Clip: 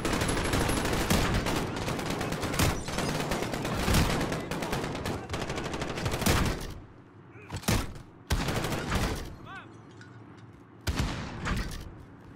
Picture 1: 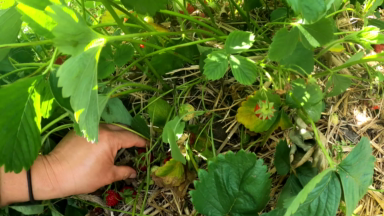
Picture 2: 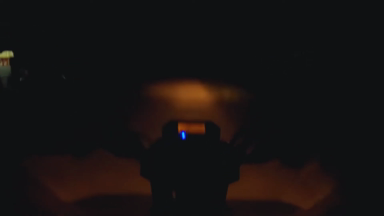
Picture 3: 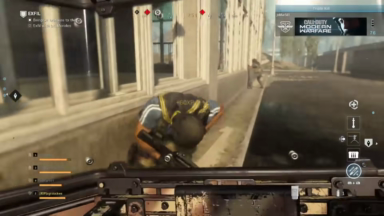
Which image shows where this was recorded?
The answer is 3